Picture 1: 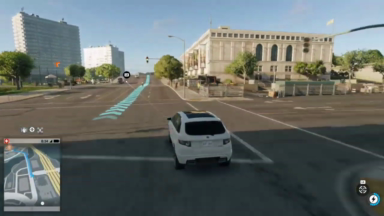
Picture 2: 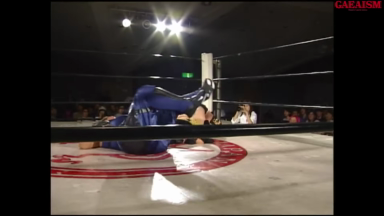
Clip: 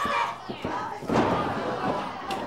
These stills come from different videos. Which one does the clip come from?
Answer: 2